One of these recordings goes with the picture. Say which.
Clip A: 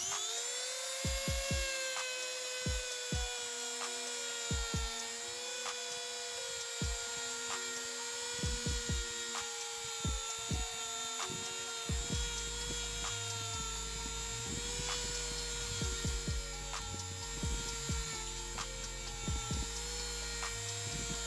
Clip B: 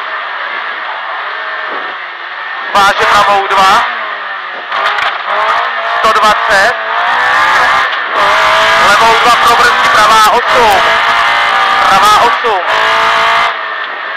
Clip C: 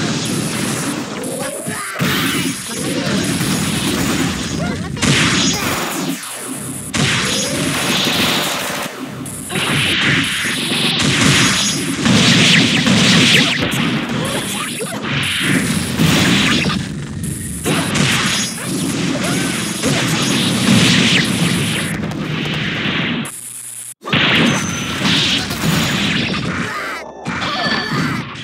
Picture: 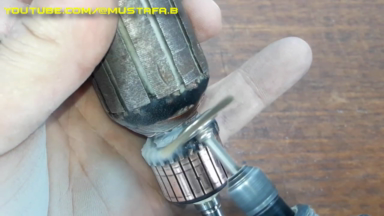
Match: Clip A